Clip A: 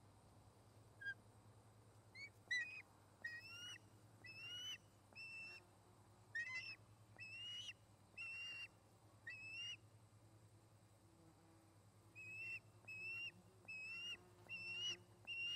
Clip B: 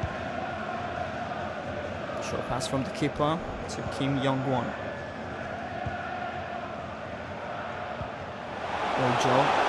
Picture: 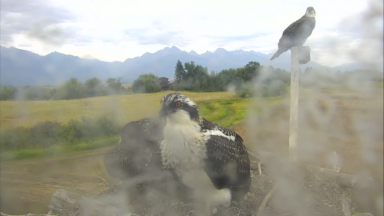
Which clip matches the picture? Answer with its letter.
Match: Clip A